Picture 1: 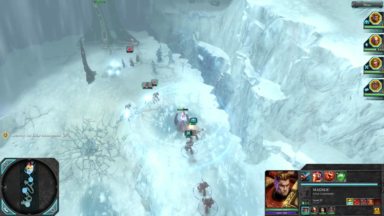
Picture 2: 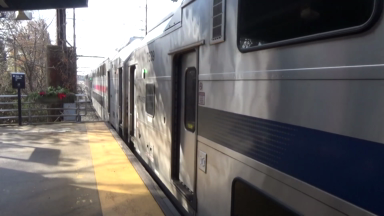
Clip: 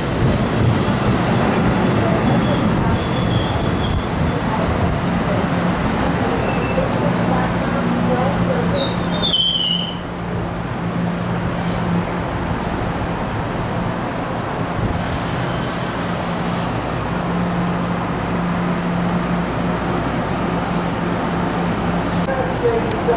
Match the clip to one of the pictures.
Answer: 2